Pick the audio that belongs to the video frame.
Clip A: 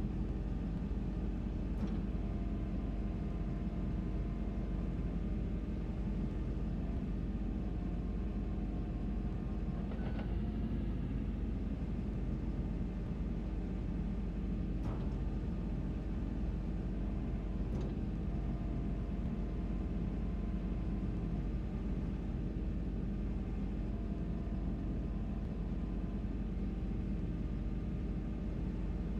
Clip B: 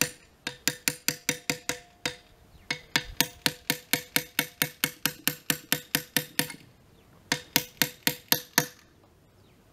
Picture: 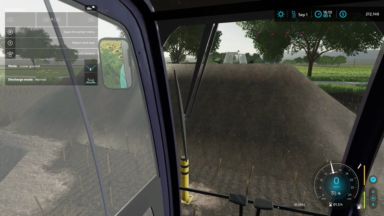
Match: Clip A